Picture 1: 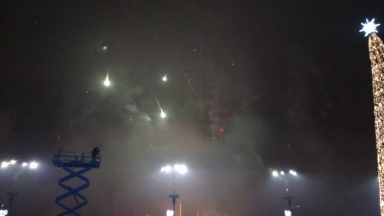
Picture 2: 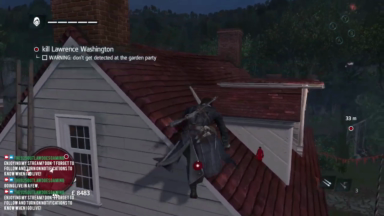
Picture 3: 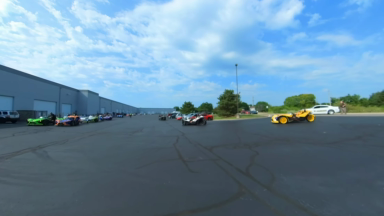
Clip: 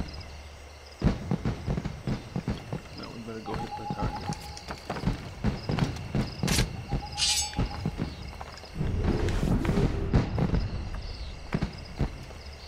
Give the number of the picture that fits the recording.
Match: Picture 2